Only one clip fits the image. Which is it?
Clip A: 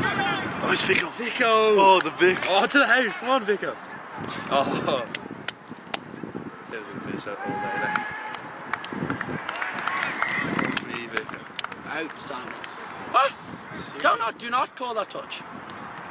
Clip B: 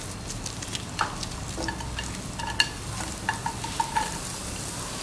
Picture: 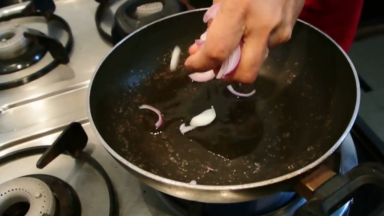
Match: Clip B